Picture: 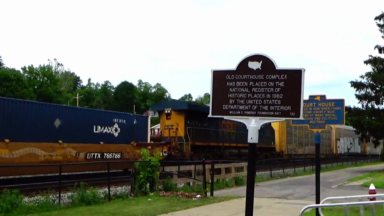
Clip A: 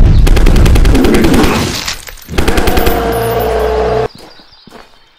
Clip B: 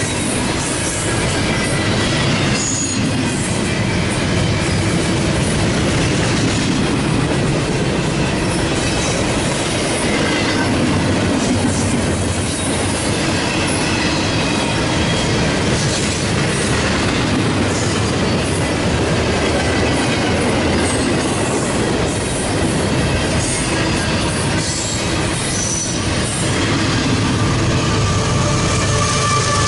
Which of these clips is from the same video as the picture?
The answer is B